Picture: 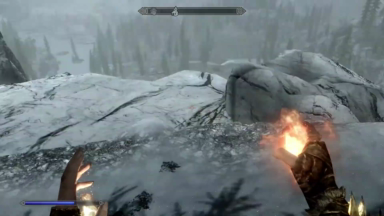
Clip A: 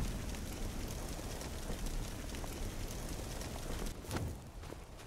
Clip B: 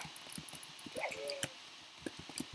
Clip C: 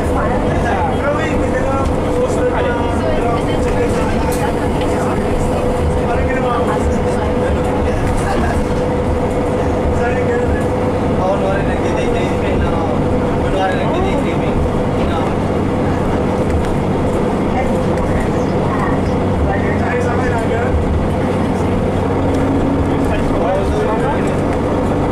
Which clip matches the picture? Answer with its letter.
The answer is A